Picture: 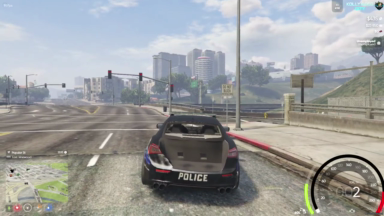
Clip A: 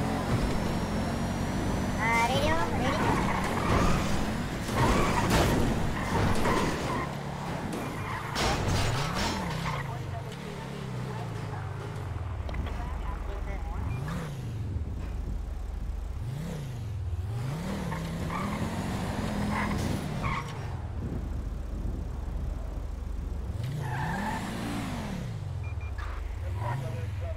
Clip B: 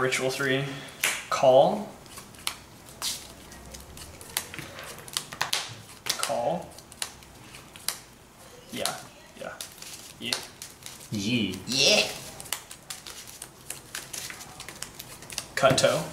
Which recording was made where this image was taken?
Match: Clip A